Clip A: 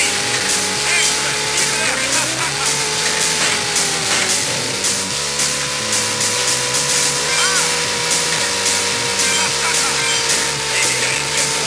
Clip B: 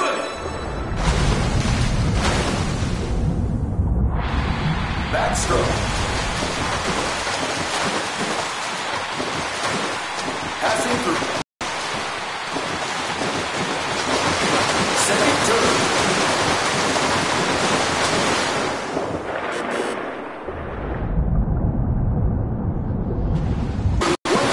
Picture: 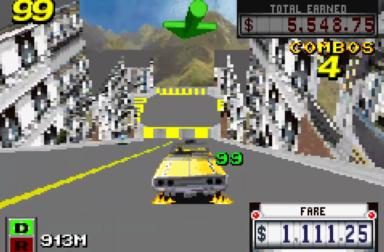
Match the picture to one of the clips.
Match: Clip A